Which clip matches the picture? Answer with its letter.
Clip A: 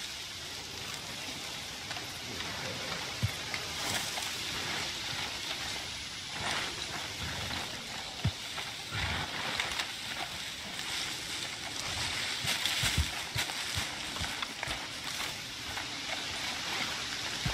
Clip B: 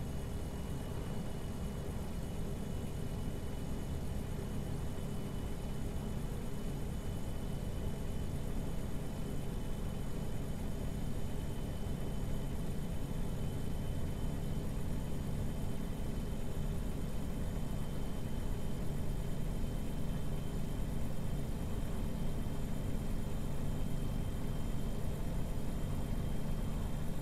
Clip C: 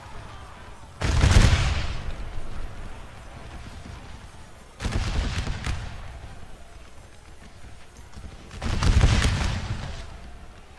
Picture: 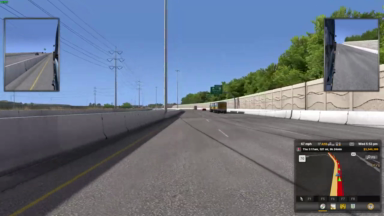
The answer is B